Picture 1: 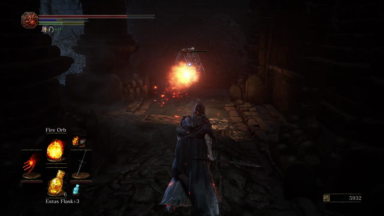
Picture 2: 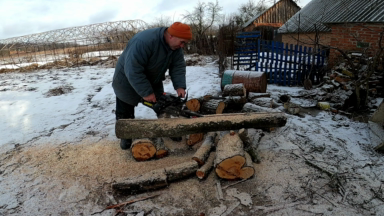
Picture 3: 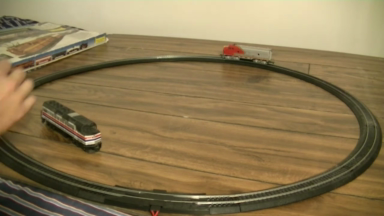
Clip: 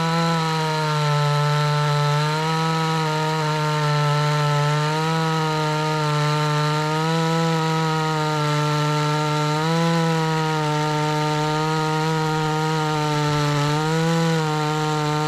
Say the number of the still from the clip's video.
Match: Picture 2